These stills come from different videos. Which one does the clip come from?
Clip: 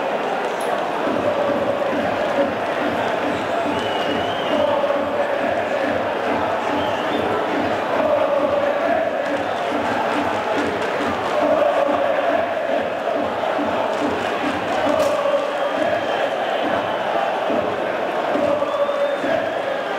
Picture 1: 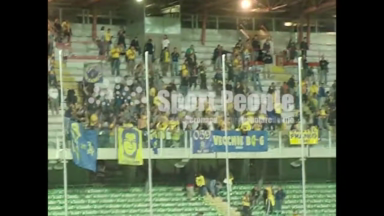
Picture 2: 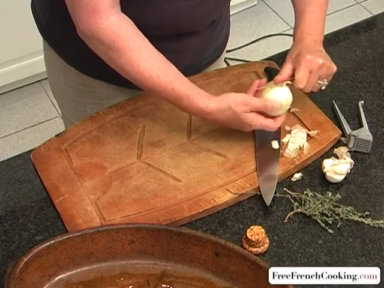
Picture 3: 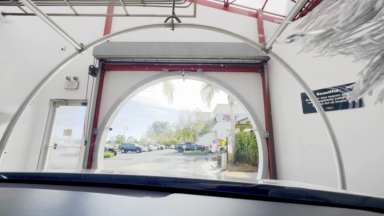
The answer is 1